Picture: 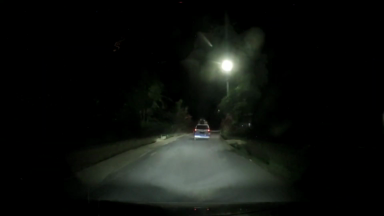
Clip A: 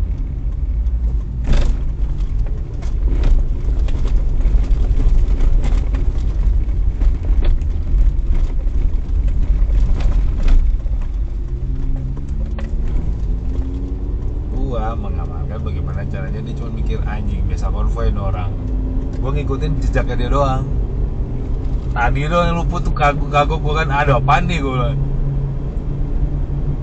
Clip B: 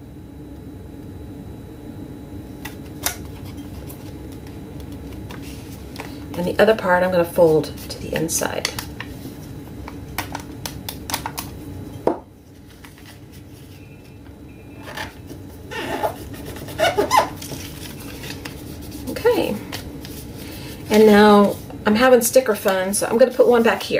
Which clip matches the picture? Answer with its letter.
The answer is A